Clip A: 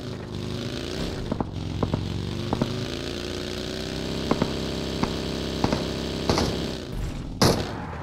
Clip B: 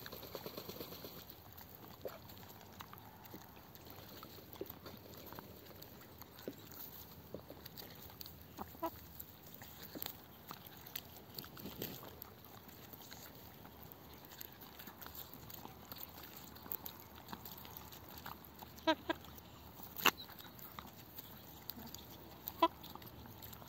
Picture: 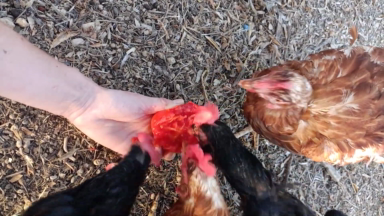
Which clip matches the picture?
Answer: B